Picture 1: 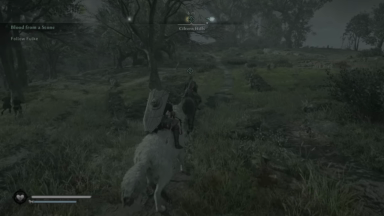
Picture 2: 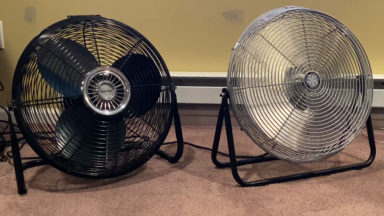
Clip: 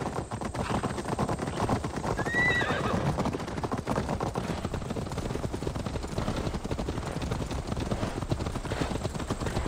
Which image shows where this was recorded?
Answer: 1